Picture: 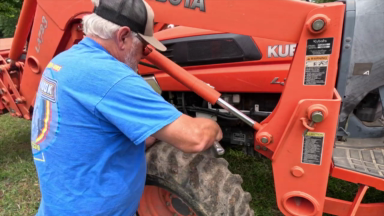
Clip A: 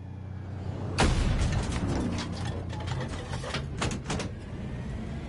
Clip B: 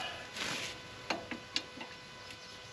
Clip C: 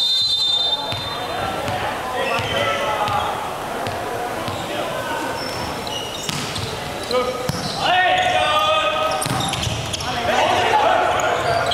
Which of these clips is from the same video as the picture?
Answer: B